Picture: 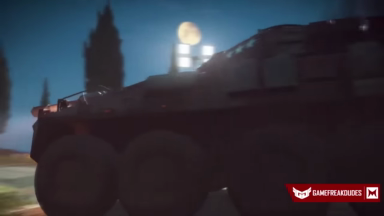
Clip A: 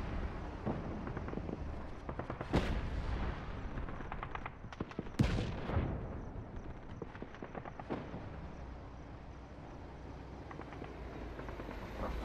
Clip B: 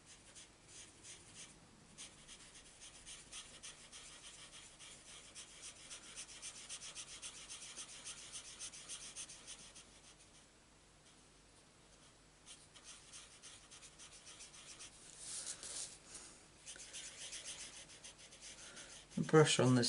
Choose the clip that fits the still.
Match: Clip A